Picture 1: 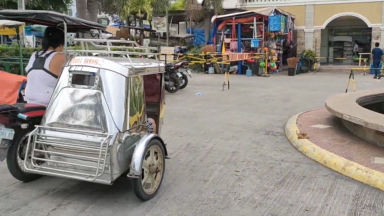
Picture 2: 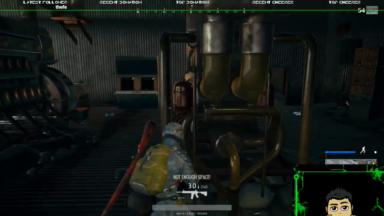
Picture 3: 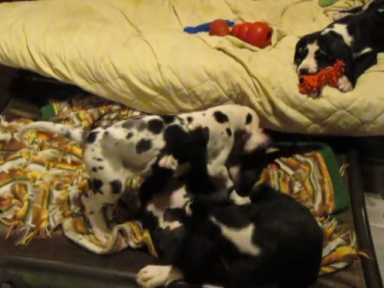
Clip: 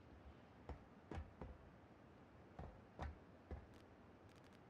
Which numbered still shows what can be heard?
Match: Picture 2